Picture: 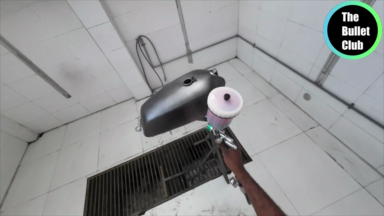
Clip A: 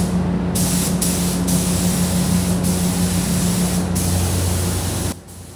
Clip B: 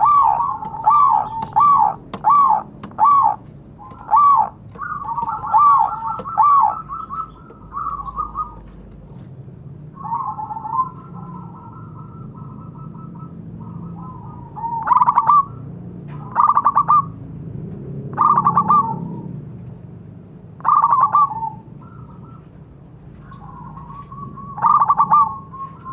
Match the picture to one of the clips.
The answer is A